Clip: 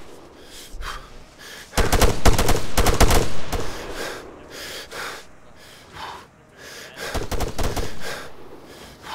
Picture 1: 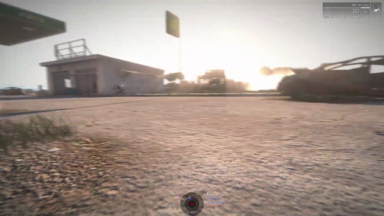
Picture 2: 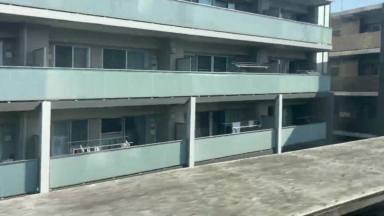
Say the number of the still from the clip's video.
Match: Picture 1